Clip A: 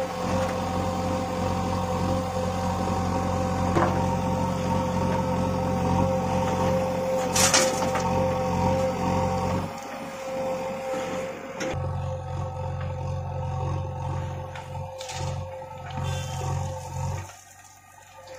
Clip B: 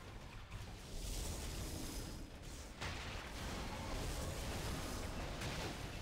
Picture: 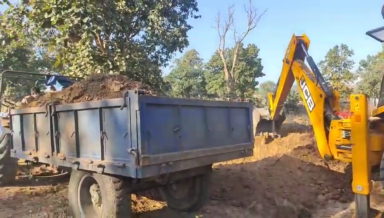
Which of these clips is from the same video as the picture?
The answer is A